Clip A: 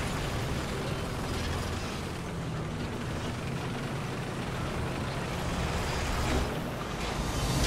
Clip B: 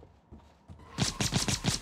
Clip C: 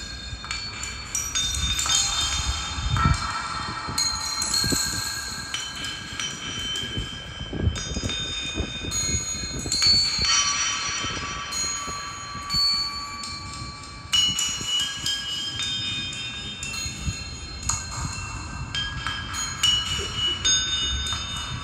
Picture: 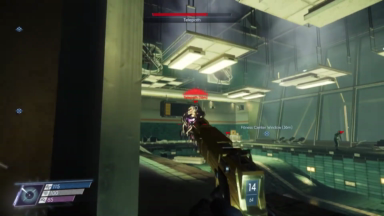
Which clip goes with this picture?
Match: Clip B